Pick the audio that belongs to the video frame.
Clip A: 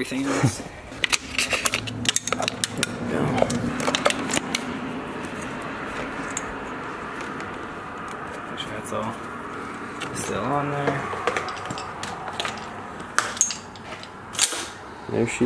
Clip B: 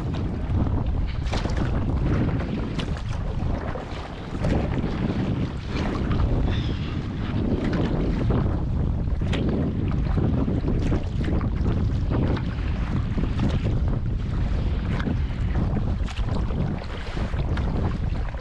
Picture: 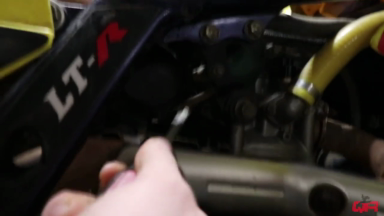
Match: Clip A